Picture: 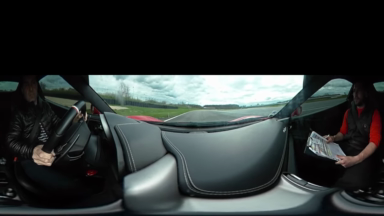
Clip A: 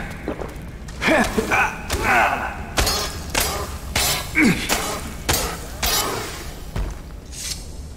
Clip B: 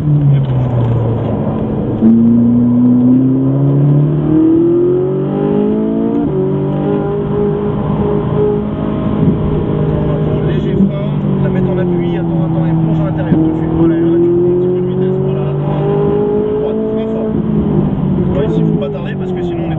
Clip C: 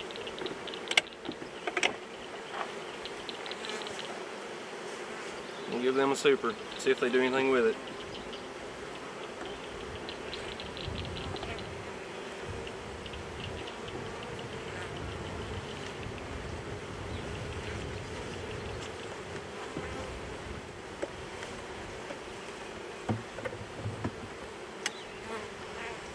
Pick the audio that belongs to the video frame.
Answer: B